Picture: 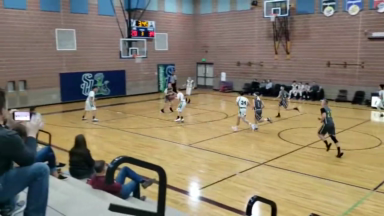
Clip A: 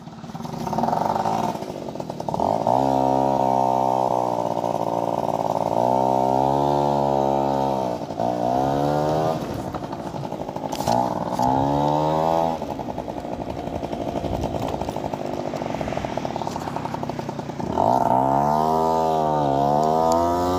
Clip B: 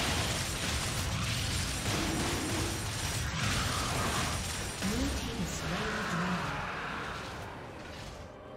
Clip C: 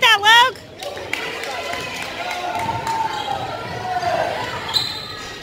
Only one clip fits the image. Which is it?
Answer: C